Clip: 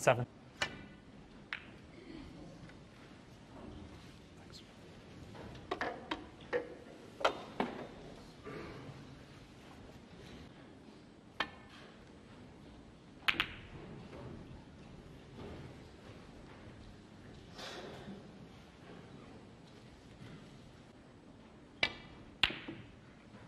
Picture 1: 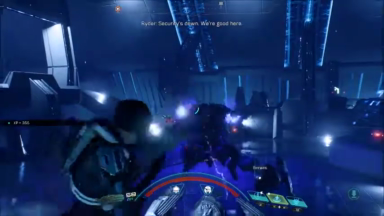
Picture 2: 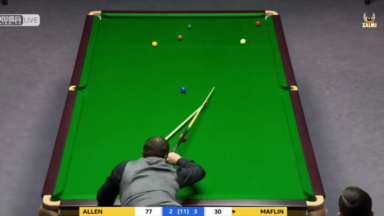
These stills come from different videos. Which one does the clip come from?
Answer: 2